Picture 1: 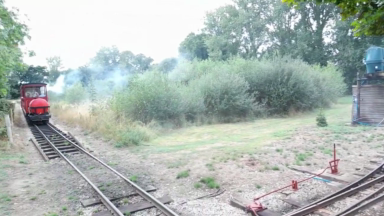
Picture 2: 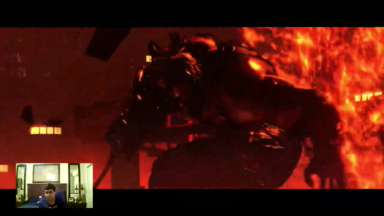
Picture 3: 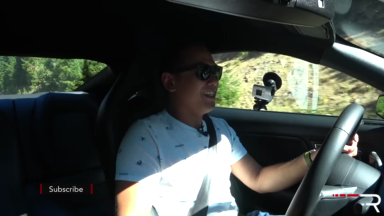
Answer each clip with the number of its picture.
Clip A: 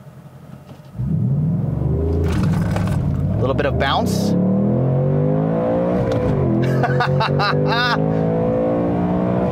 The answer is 3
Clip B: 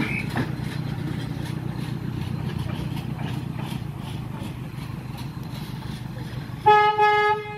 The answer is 1